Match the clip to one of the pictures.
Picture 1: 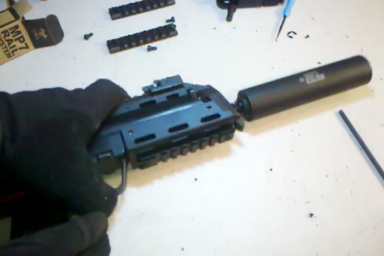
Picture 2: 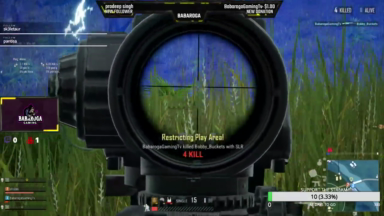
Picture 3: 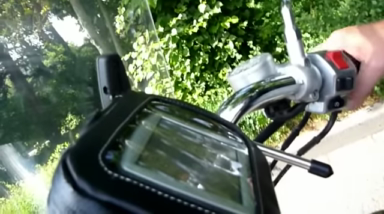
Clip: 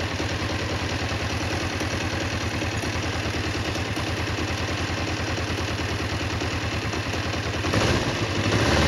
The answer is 3